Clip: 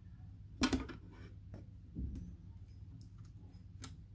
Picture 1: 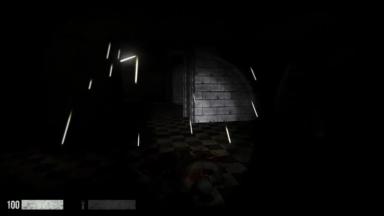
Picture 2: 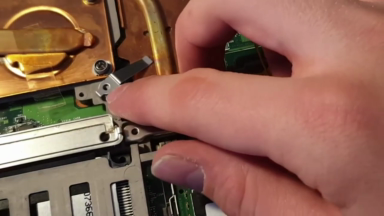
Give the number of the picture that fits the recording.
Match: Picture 2